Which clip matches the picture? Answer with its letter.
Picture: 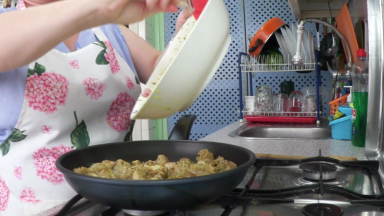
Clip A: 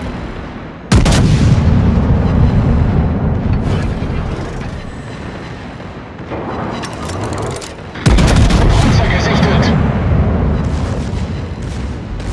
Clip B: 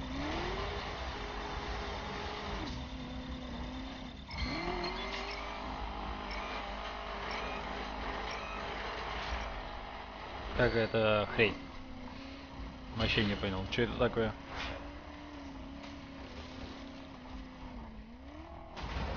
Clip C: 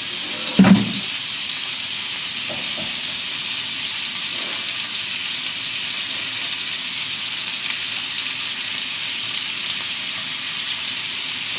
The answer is C